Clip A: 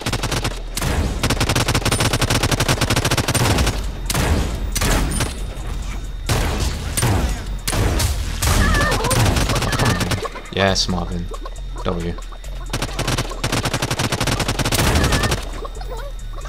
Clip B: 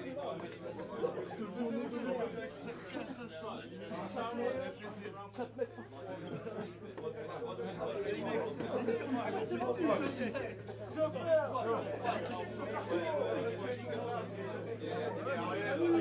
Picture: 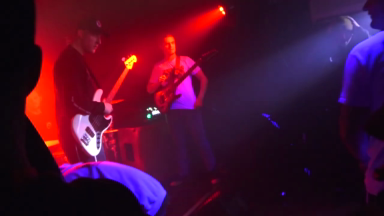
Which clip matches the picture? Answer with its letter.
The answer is B